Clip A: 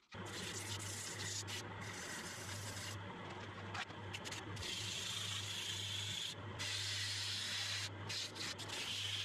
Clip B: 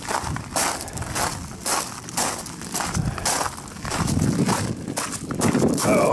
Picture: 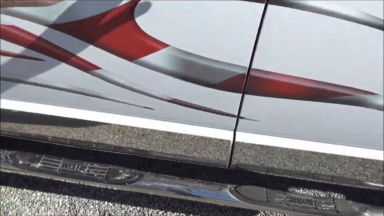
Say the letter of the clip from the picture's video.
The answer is B